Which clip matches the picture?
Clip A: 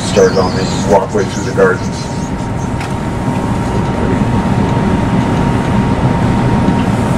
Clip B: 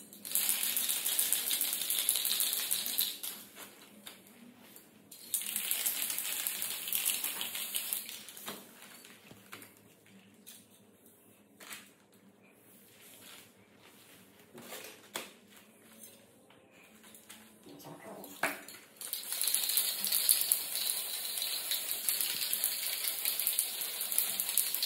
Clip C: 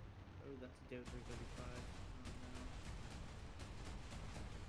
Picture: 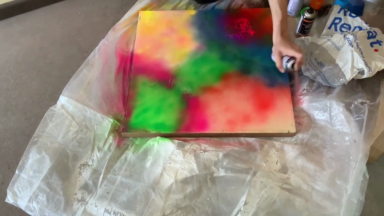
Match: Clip B